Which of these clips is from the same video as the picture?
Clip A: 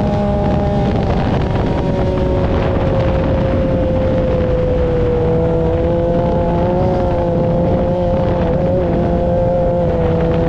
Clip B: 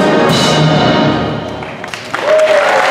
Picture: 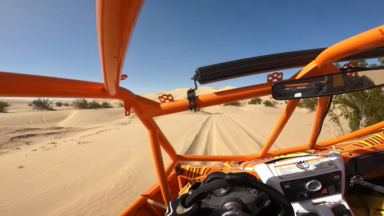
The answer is A